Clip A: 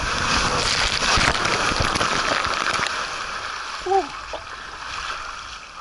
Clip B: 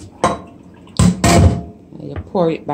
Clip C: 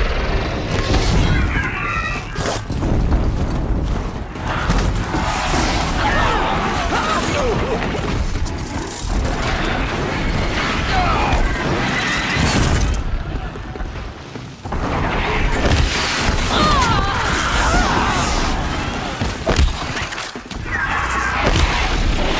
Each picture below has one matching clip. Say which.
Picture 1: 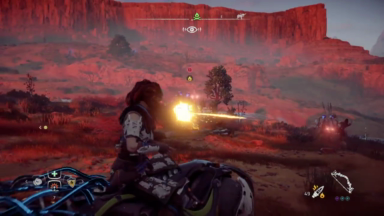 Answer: C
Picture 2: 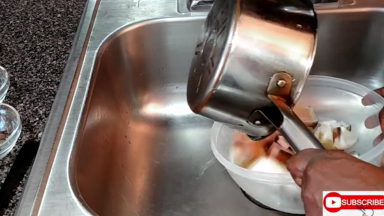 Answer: B